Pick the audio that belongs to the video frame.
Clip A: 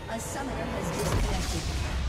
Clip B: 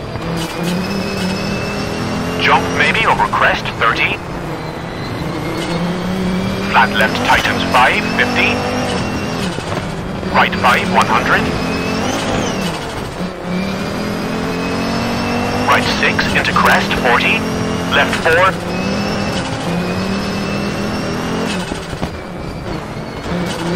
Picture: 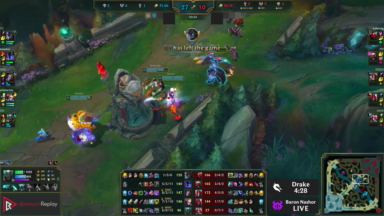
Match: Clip A